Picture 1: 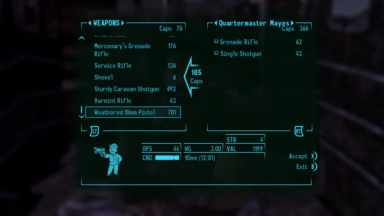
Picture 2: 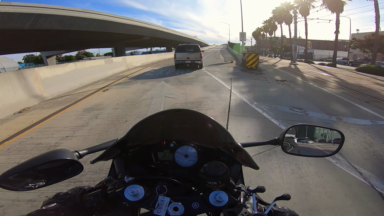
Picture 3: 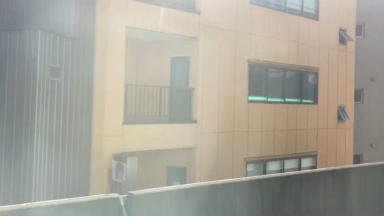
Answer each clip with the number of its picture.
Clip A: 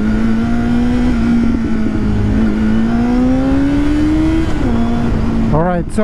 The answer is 2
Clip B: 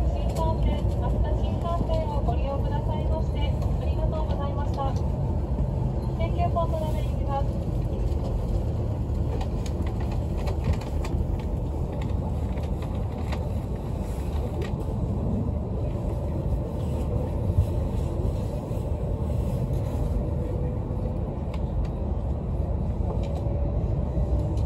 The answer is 3